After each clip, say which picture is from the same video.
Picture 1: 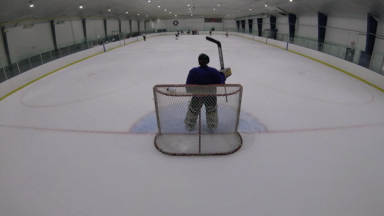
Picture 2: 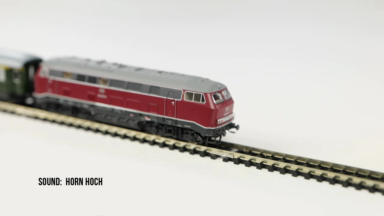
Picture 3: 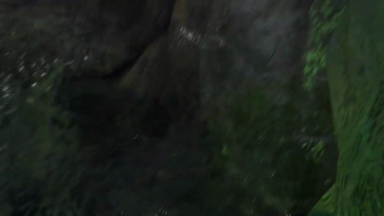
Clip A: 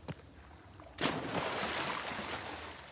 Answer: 3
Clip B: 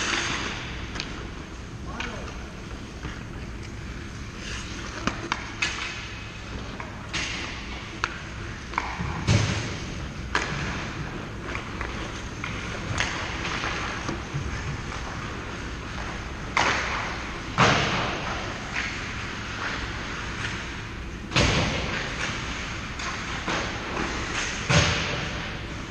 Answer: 1